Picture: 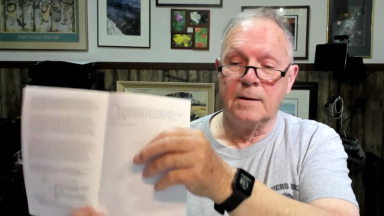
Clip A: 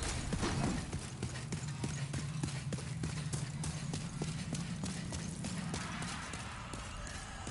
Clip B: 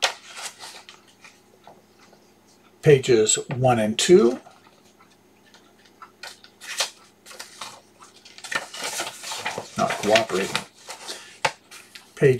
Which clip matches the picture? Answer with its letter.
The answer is B